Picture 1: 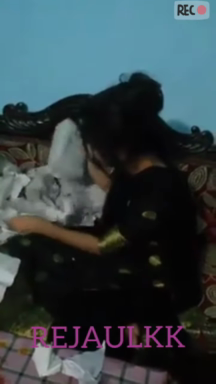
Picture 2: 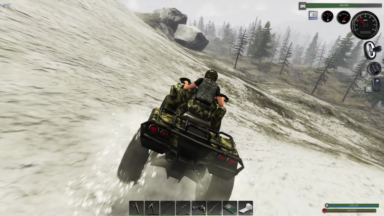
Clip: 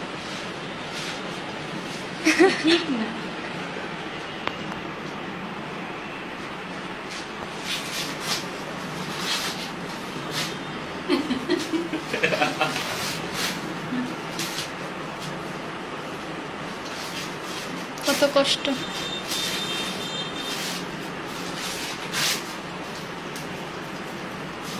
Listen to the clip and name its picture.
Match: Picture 1